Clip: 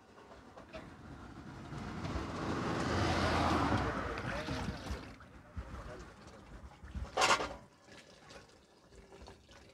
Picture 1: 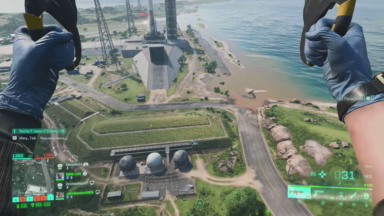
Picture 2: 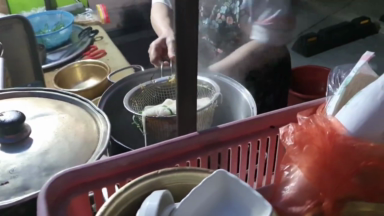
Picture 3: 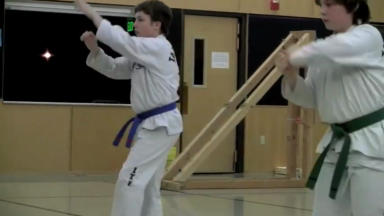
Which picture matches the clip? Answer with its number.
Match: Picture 2